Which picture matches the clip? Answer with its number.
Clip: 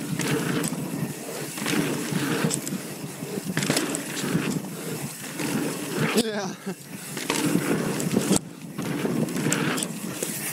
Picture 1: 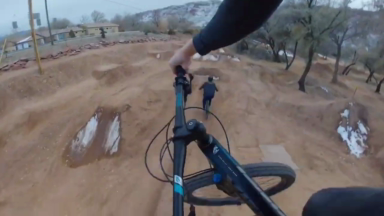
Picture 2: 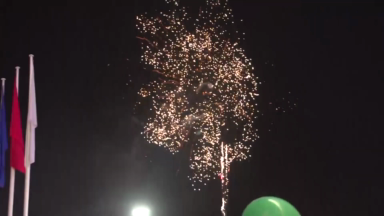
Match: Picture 1